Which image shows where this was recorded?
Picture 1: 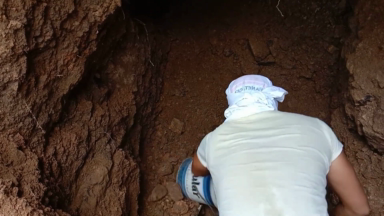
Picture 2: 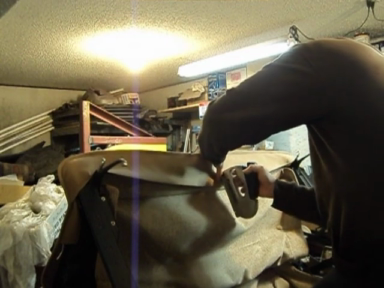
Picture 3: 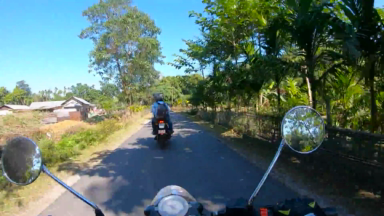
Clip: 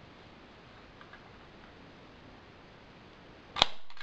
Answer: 2